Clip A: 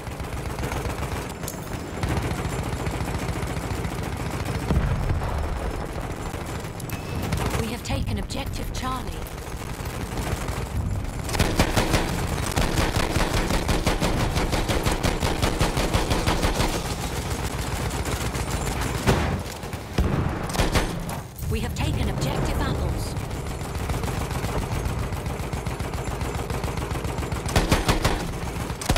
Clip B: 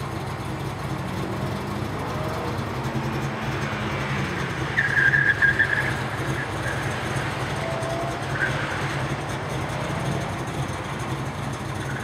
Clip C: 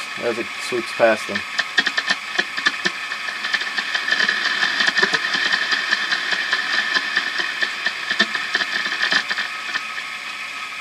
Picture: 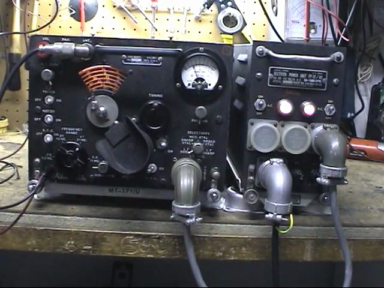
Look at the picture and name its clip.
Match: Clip C